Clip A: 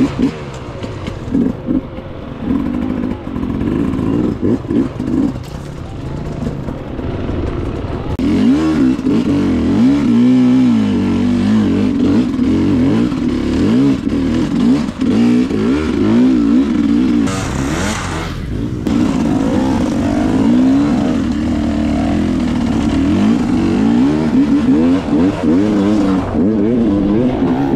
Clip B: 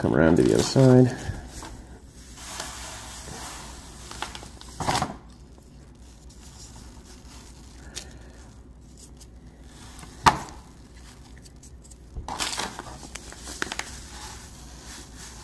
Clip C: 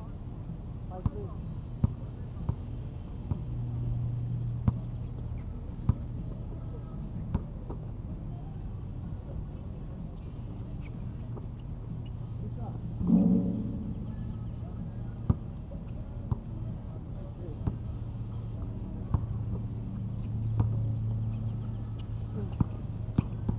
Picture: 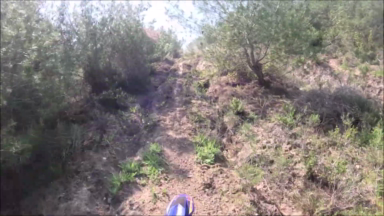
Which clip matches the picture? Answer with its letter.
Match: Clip A